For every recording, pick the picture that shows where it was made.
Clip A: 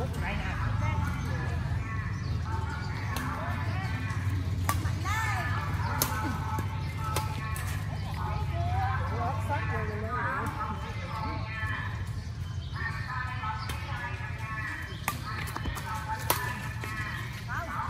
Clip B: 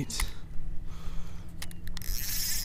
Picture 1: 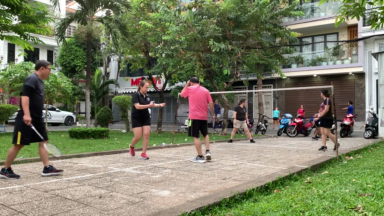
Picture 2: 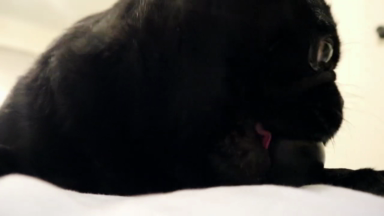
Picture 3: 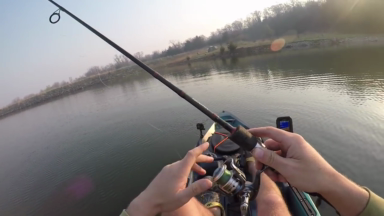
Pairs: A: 1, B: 3